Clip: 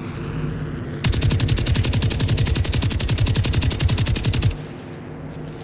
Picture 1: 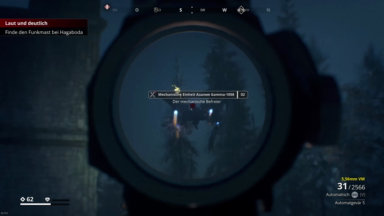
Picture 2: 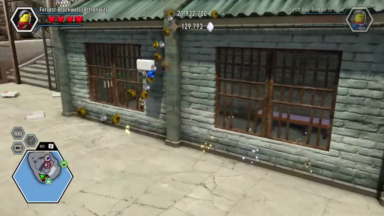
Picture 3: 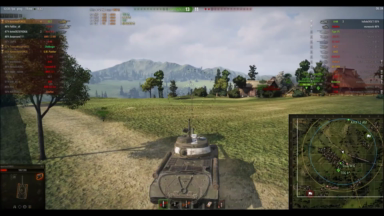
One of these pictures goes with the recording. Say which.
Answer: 1